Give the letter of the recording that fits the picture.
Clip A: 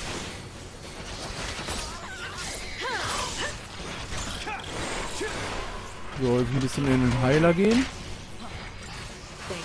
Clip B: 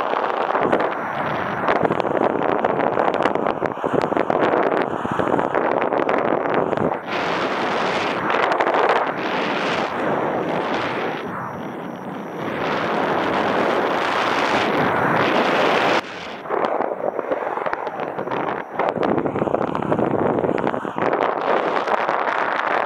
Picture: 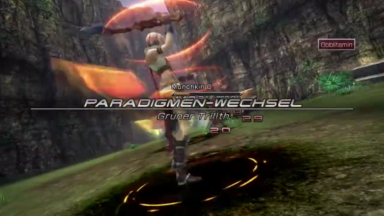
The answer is A